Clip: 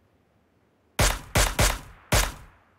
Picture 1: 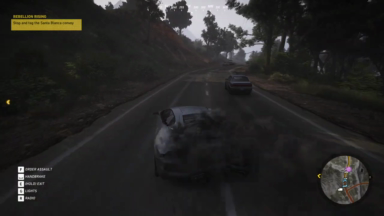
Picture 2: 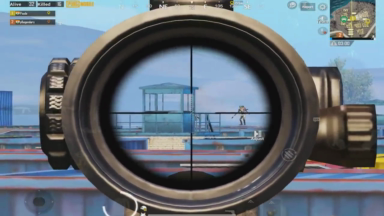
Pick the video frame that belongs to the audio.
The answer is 2